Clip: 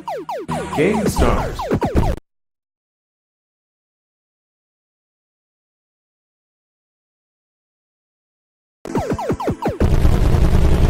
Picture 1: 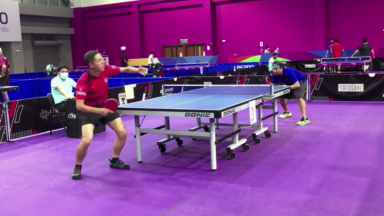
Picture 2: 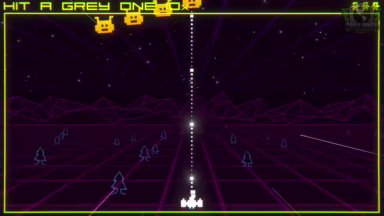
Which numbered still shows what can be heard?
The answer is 2